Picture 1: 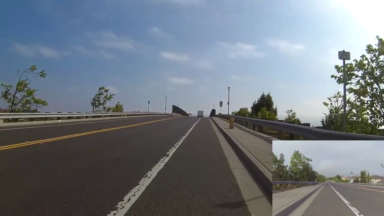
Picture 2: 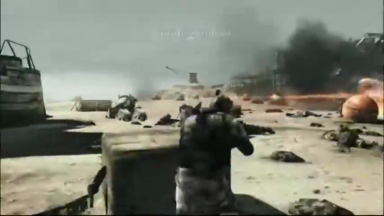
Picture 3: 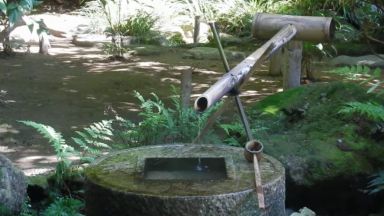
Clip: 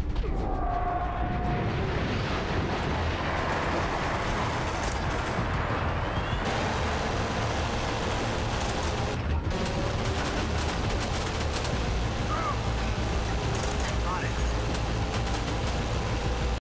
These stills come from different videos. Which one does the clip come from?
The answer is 2